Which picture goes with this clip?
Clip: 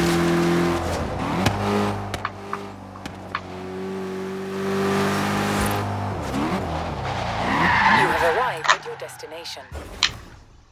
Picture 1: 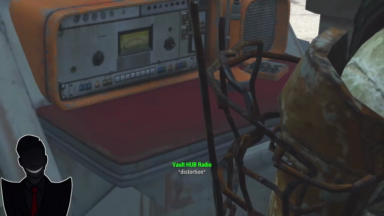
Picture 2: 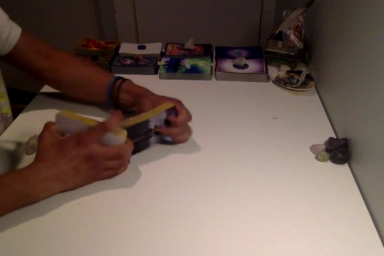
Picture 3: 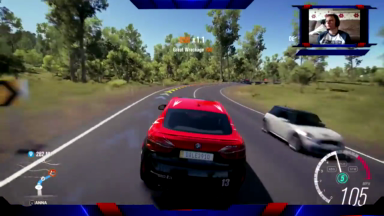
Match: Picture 3